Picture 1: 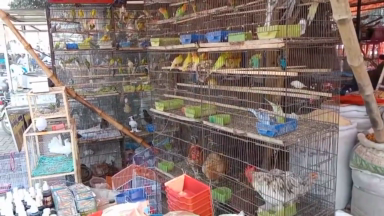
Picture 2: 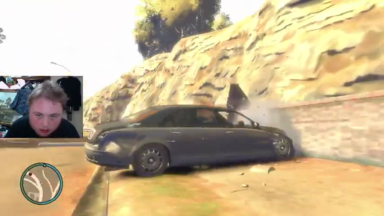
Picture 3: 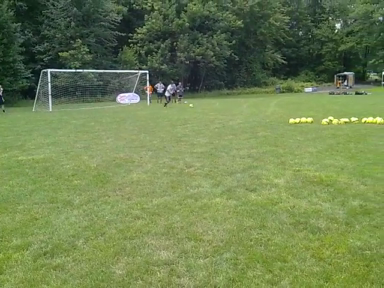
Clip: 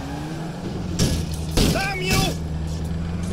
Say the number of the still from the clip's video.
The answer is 2